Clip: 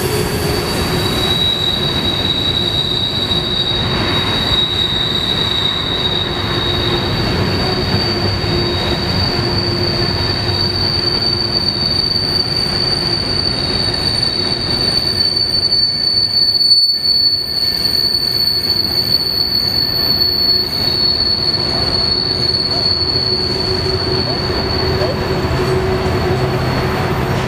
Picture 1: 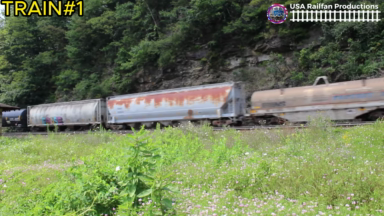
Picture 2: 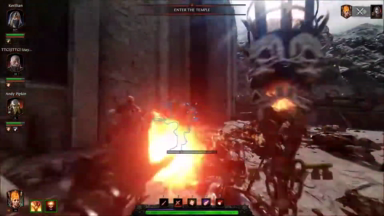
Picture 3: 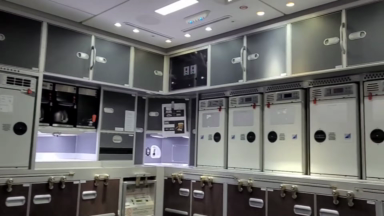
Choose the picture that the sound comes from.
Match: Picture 1